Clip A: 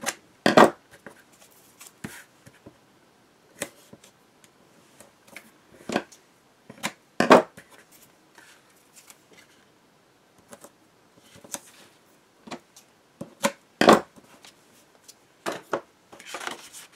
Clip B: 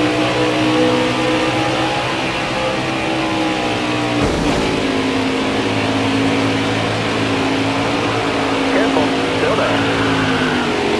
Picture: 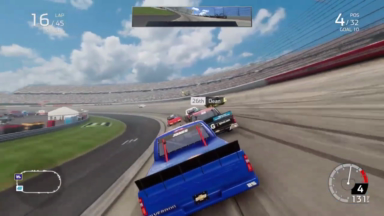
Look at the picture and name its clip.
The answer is B